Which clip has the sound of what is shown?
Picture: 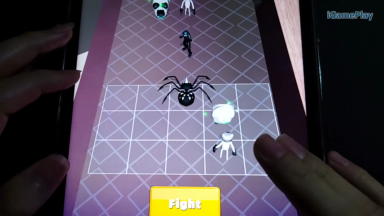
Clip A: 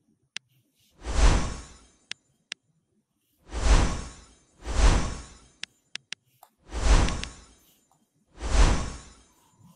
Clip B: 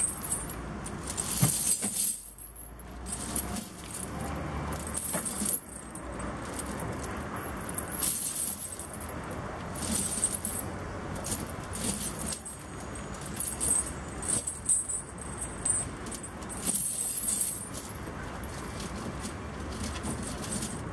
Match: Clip A